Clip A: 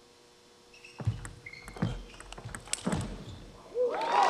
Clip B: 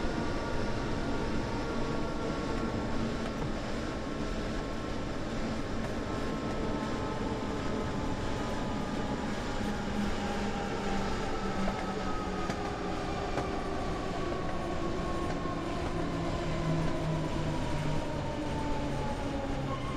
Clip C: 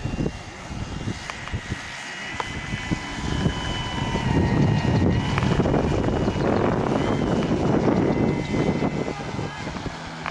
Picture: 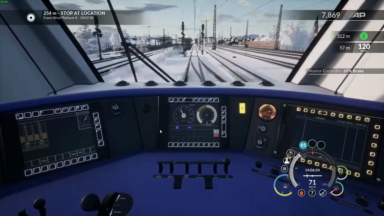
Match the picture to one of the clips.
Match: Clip B